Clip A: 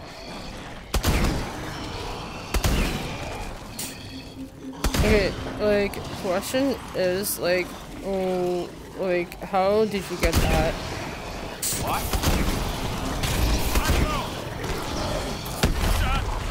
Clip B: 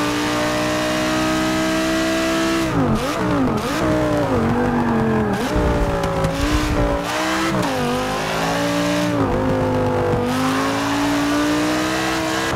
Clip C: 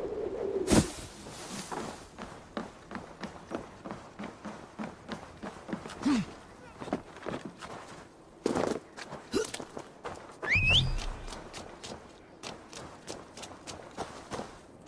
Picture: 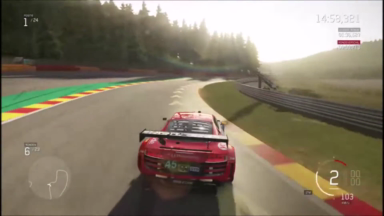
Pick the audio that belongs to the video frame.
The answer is B